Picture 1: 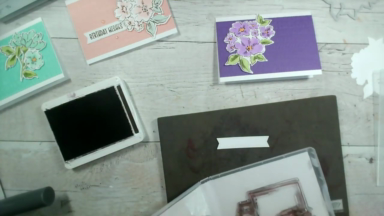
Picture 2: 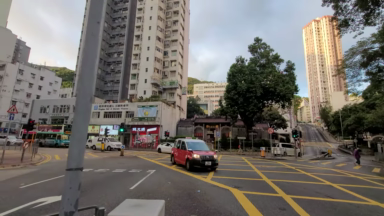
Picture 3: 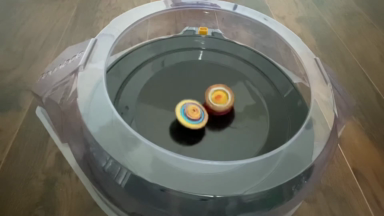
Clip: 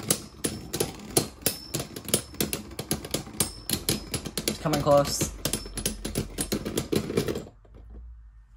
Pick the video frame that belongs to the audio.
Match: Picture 3